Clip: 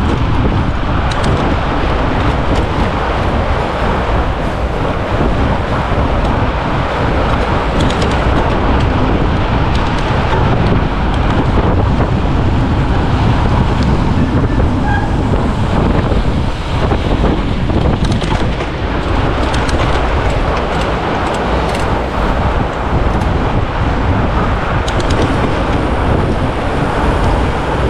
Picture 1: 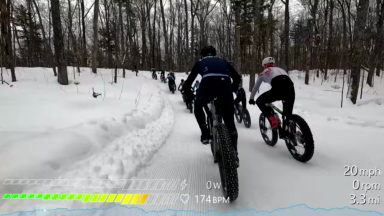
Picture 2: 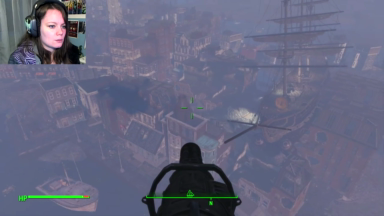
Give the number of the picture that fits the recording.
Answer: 1